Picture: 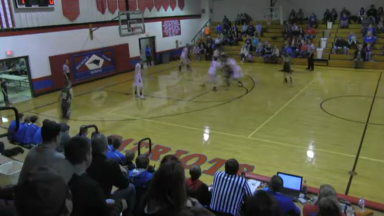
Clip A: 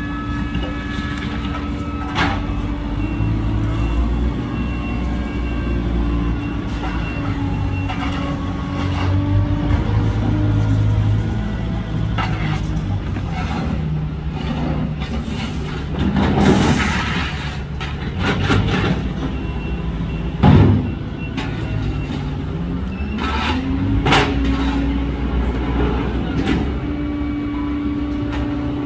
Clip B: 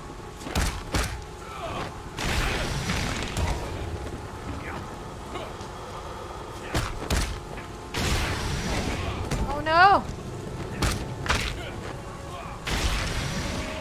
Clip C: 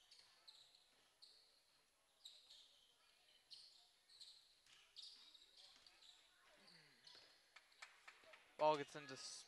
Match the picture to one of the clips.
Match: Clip C